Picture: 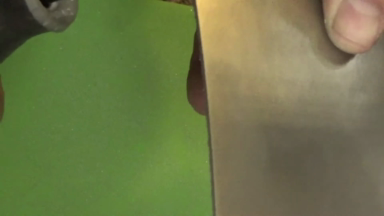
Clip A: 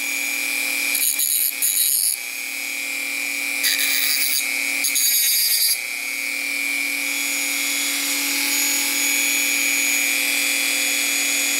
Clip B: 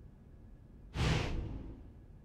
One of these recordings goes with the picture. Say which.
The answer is A